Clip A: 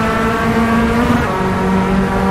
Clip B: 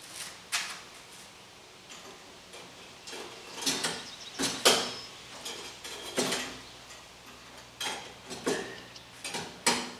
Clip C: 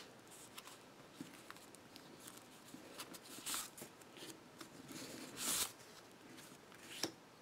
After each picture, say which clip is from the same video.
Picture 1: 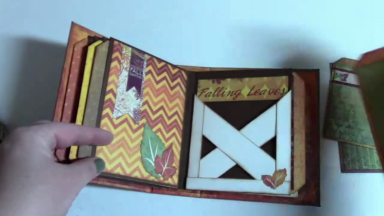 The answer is C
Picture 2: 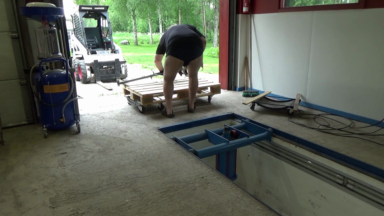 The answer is B